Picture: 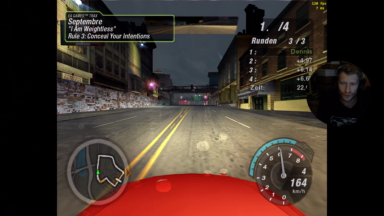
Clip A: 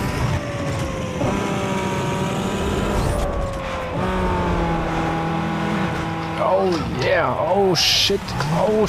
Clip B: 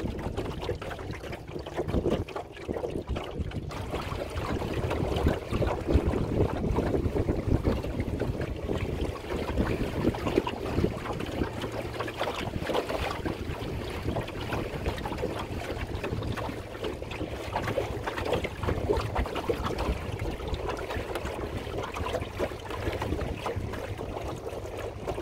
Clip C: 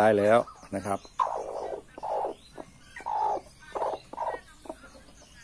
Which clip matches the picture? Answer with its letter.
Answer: A